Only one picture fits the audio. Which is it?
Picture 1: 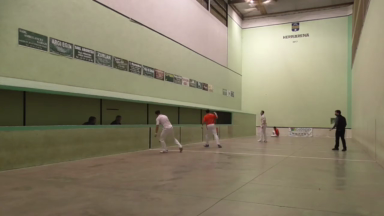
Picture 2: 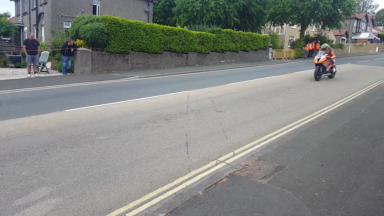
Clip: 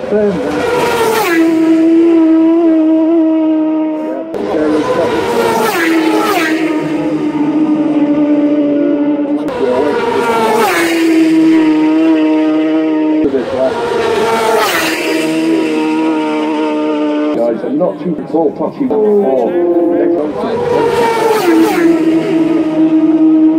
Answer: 2